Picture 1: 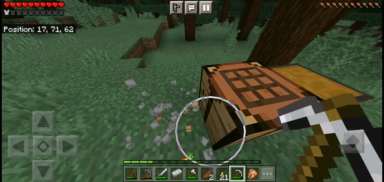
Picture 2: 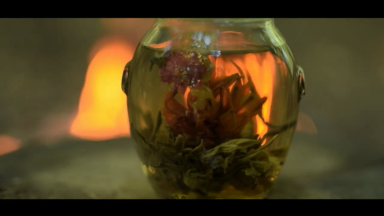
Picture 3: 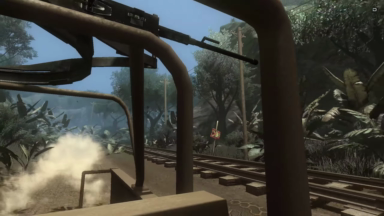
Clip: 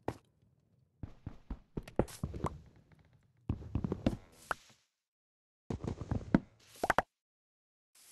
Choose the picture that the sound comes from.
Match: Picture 1